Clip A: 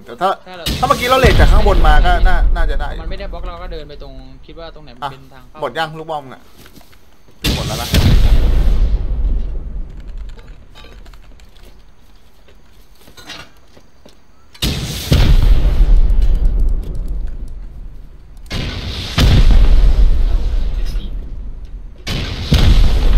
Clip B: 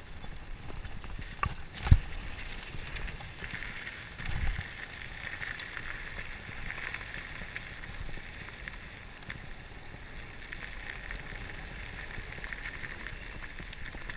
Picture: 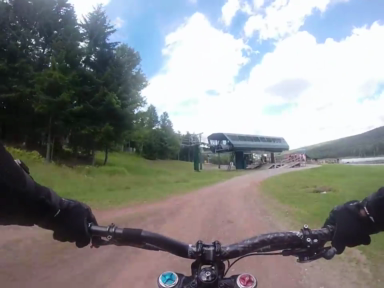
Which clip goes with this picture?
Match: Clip B